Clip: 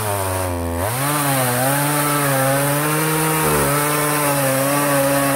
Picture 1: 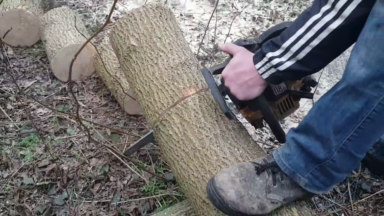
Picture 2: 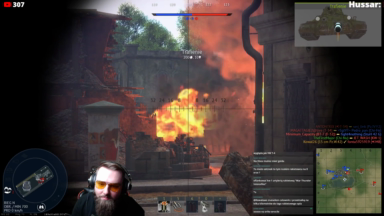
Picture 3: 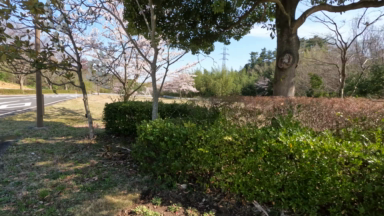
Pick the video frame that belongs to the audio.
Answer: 1